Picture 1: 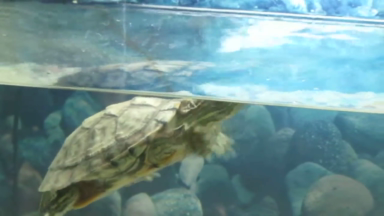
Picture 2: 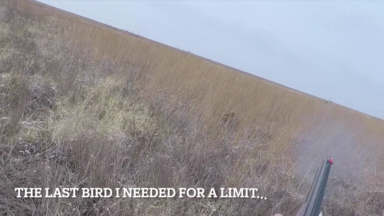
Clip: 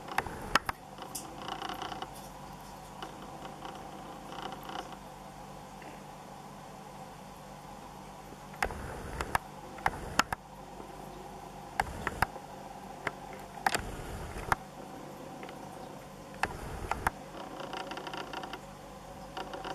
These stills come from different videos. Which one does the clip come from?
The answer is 1